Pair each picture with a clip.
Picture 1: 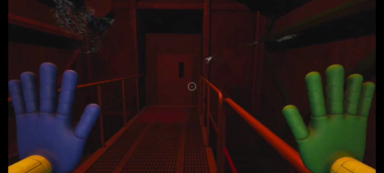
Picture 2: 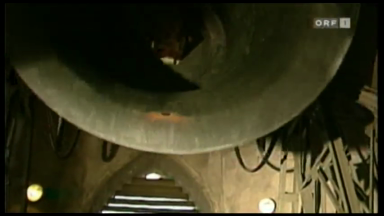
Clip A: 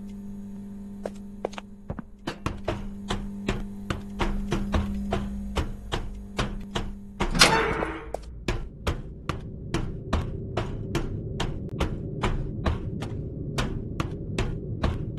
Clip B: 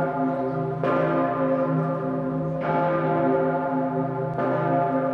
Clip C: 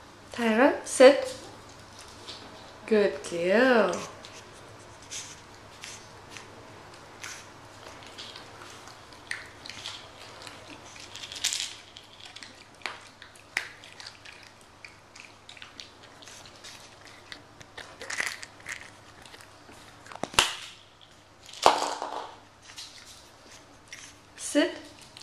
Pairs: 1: A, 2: B